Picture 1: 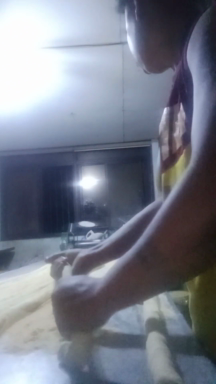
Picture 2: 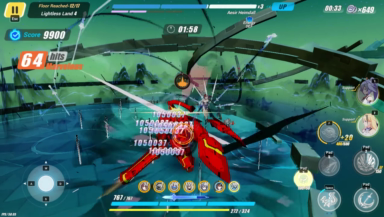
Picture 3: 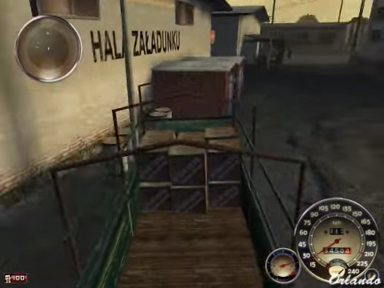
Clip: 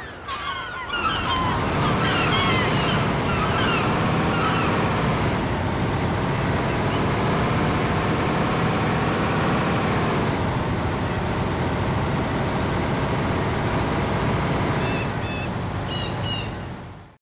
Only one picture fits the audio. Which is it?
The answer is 3